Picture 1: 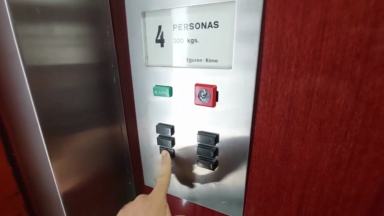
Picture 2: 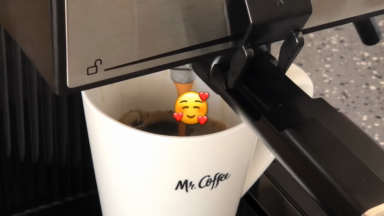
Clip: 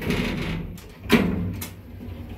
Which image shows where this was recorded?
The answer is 1